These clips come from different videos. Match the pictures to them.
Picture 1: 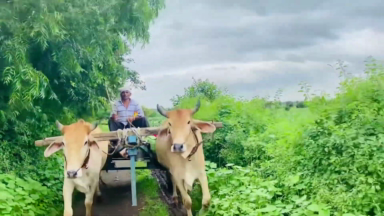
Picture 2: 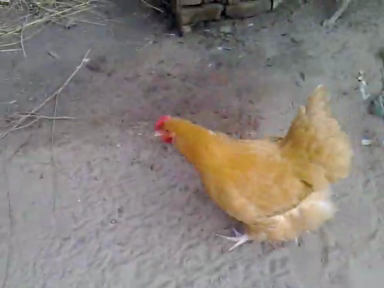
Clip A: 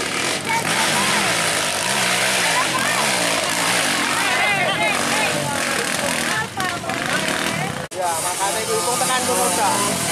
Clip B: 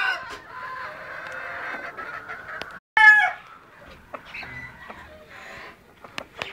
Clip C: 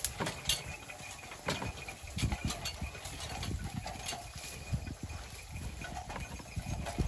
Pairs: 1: C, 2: B